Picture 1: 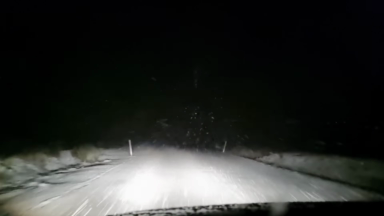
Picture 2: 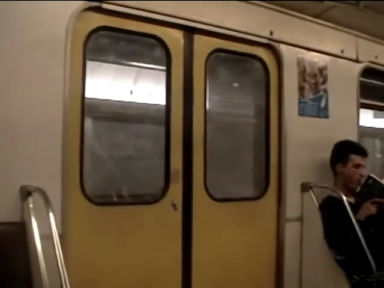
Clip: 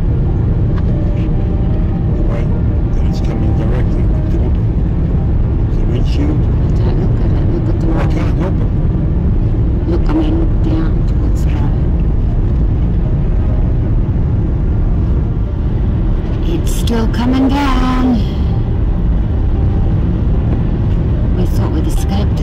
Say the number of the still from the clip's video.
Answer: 1